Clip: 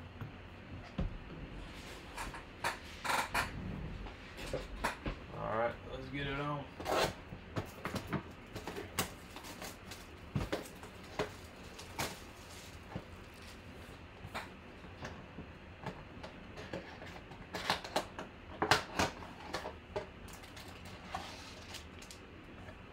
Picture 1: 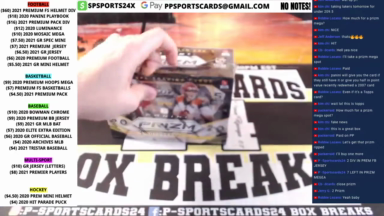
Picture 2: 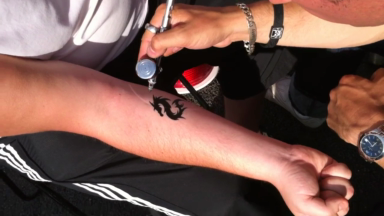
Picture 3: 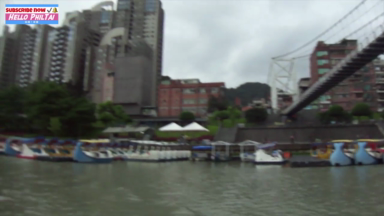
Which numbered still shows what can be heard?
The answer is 1